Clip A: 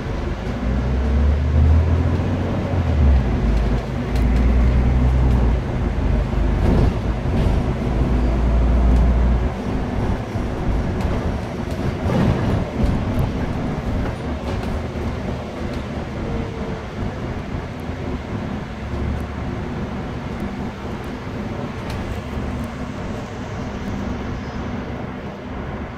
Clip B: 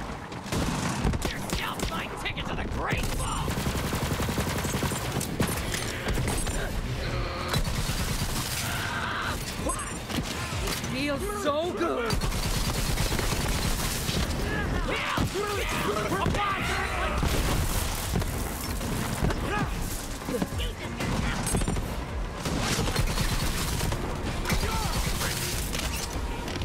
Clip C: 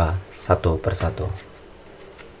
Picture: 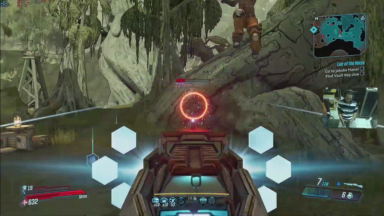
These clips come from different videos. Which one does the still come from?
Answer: B